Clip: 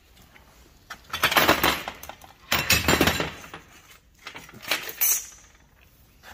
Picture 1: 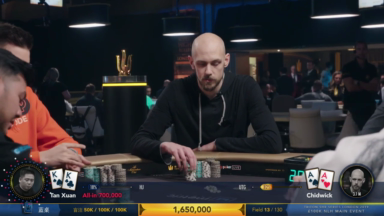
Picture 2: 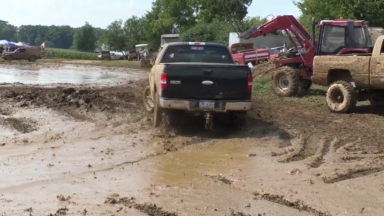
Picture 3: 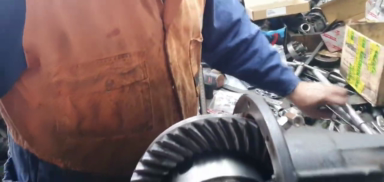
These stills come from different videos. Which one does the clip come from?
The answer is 3